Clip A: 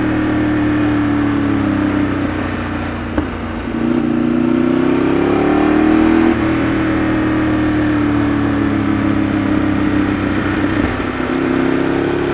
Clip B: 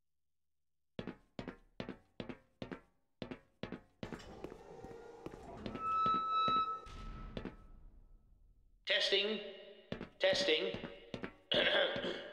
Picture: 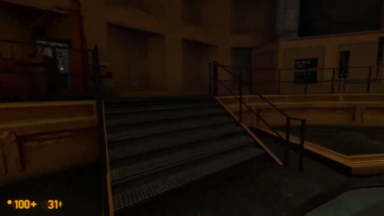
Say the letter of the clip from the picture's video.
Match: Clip B